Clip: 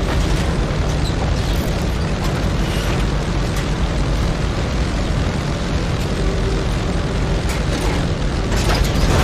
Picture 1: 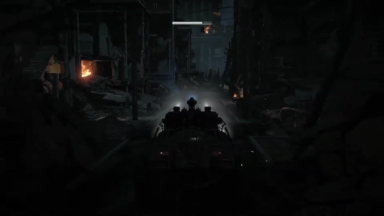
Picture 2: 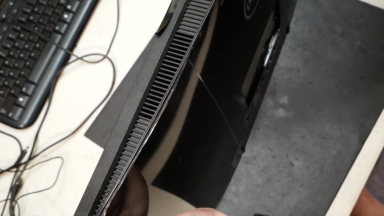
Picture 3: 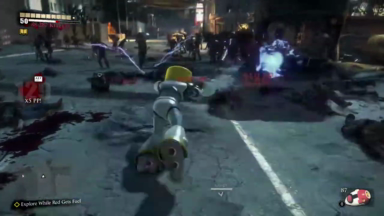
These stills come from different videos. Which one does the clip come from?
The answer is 1